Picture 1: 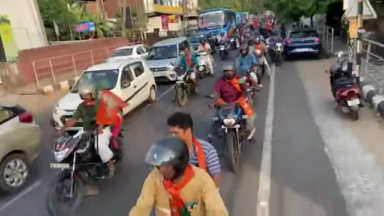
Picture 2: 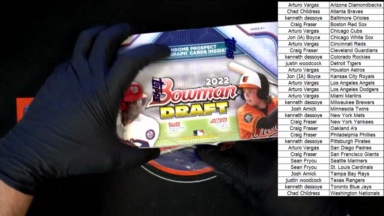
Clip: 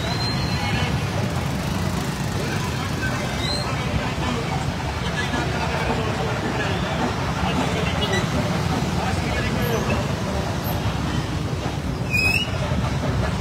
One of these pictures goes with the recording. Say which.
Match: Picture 1